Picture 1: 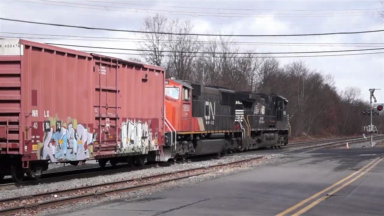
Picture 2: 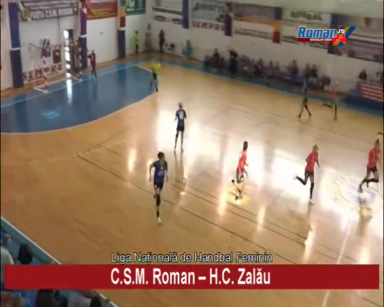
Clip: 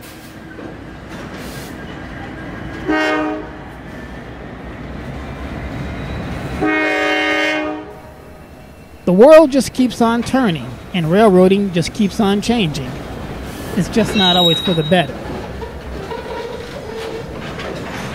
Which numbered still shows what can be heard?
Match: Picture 1